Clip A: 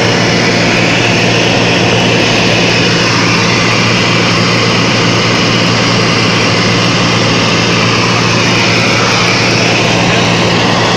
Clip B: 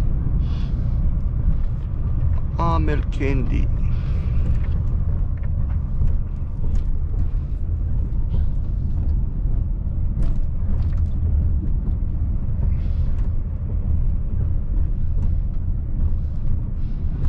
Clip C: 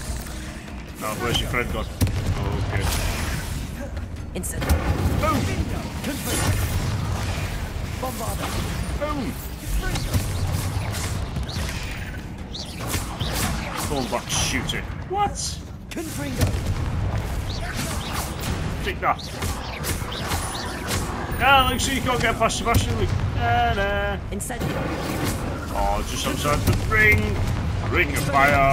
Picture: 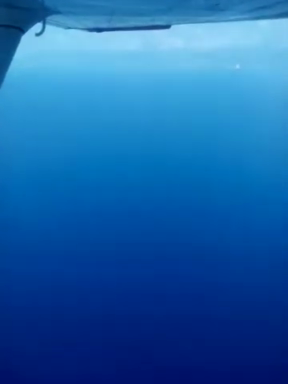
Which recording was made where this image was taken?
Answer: A